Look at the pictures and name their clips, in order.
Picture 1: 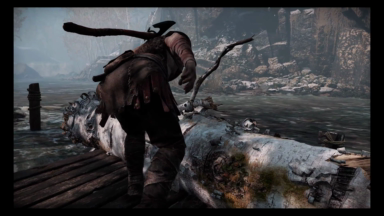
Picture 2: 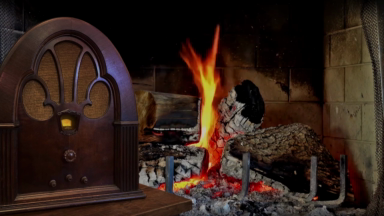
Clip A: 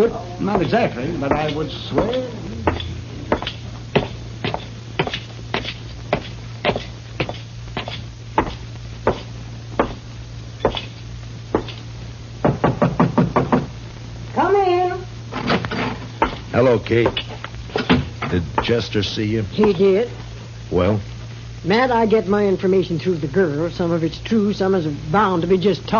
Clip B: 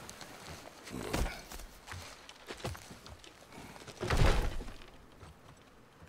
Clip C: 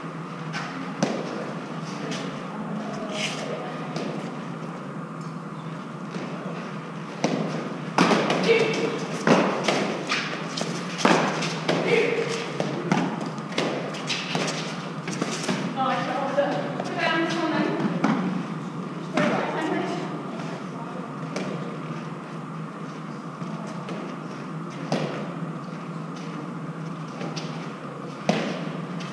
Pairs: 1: B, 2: A